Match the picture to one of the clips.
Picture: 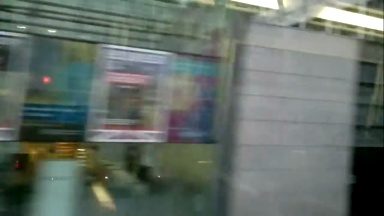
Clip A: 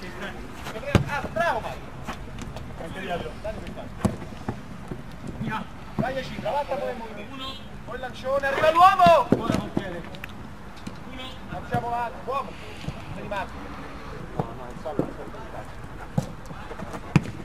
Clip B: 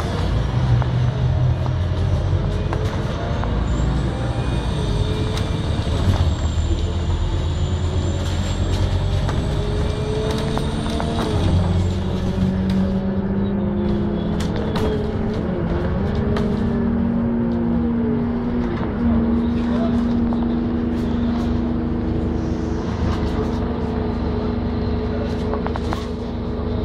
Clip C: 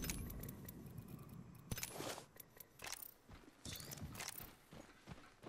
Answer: B